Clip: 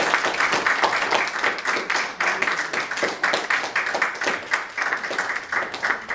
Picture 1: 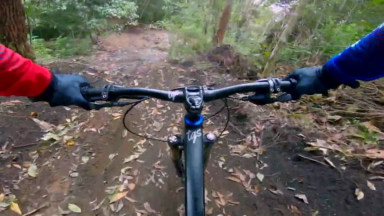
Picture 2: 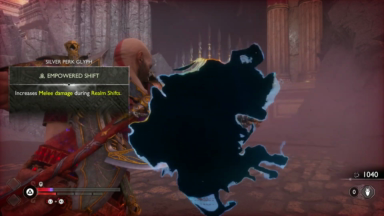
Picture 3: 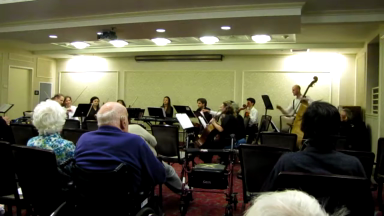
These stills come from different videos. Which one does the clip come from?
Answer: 3